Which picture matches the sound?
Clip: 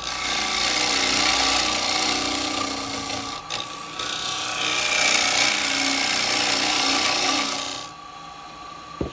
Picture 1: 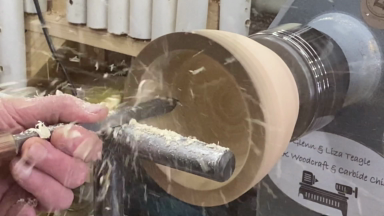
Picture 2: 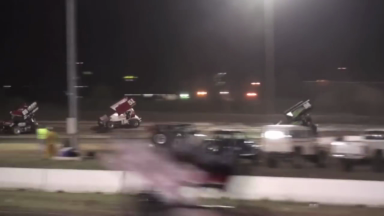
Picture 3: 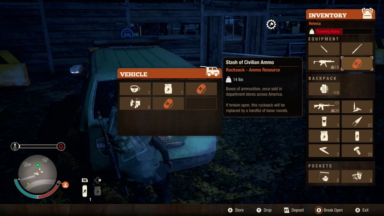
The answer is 1